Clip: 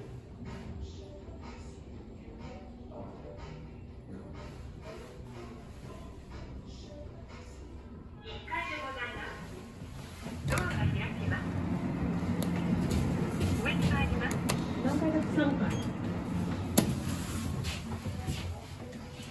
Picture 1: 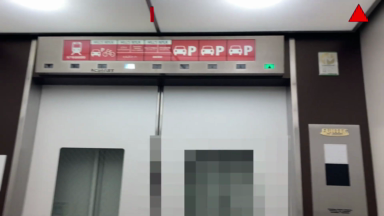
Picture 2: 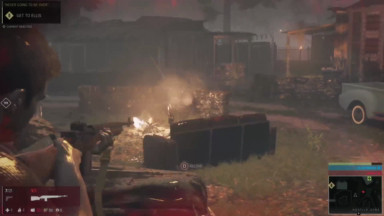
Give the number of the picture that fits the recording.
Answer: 1